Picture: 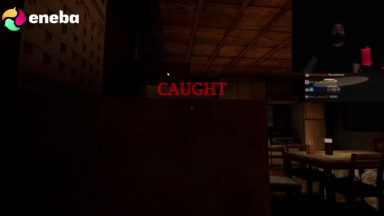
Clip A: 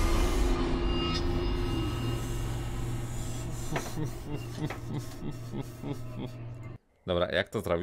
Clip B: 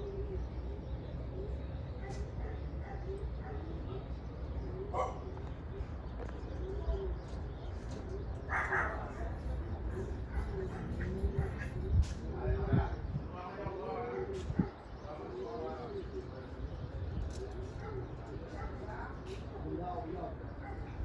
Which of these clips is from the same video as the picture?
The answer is A